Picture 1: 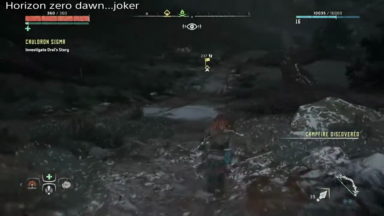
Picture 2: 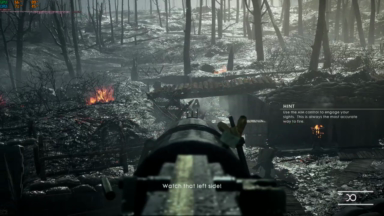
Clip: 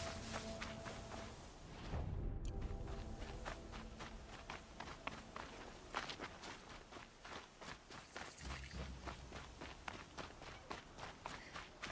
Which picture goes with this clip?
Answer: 1